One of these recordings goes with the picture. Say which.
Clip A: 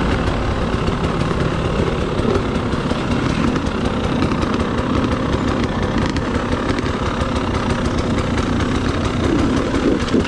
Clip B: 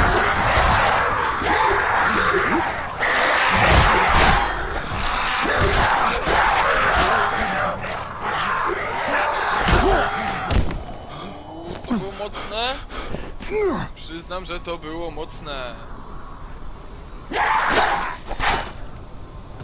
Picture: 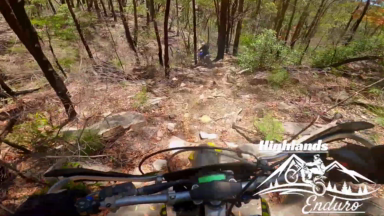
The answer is A